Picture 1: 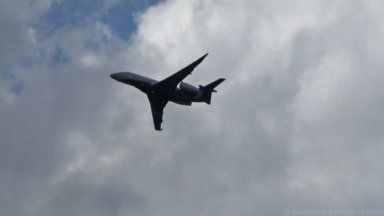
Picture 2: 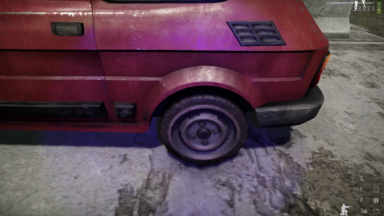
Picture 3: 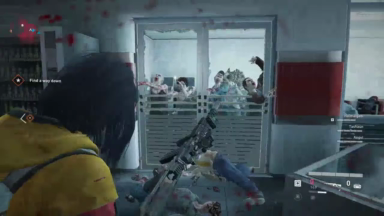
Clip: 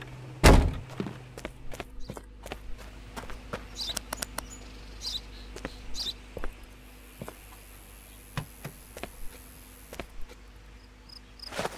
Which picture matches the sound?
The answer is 2